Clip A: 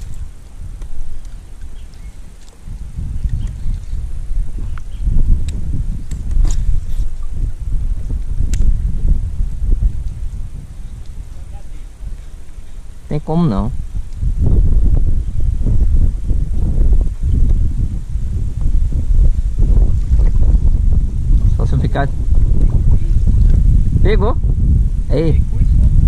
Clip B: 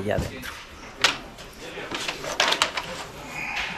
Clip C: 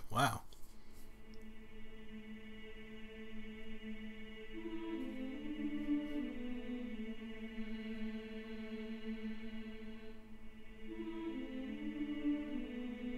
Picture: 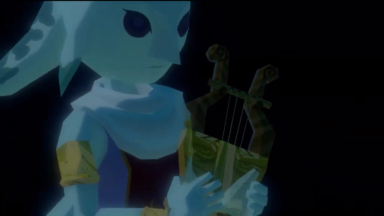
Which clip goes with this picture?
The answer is C